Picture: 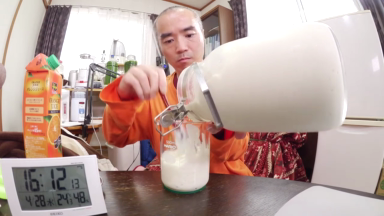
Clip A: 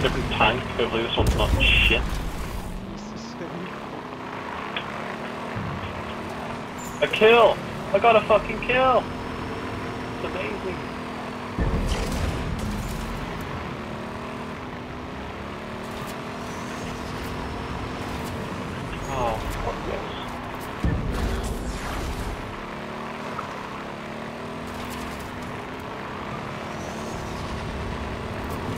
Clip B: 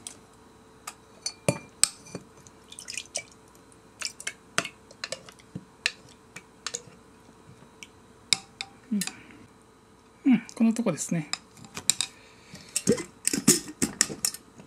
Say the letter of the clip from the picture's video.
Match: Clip B